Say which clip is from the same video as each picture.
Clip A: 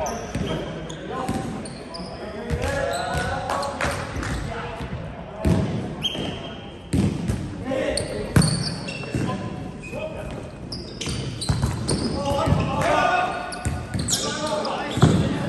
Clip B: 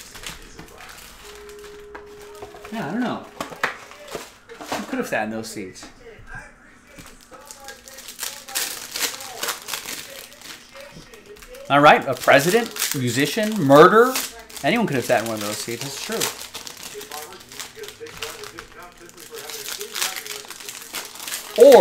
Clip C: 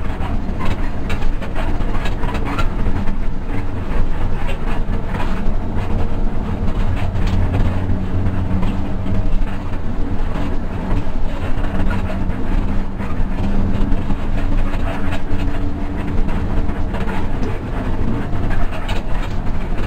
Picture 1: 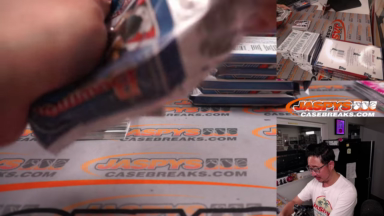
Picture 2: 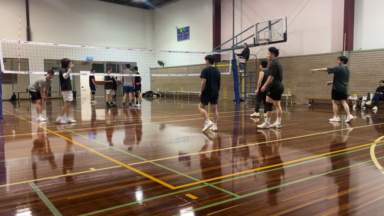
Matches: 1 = B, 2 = A